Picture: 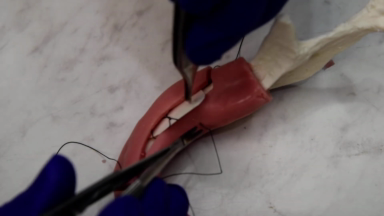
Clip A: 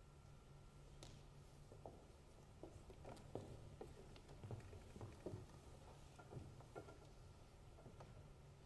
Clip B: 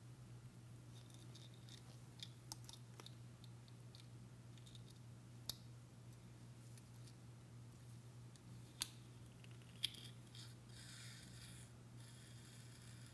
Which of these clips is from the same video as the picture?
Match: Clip B